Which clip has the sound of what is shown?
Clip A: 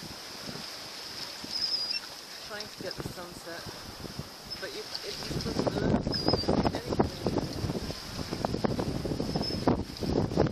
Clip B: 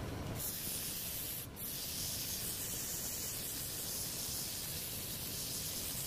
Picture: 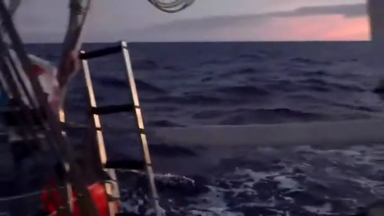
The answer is A